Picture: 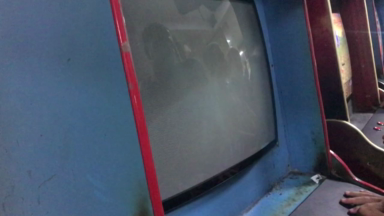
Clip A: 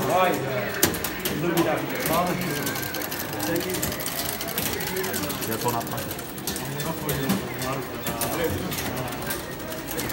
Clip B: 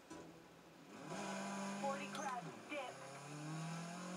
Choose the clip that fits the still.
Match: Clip A